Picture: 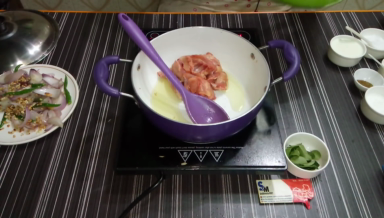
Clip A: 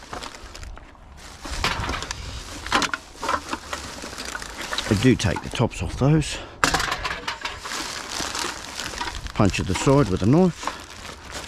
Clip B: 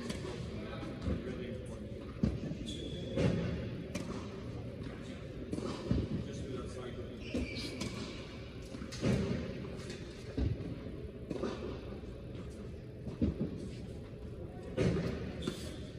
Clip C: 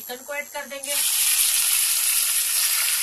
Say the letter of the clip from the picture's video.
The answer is C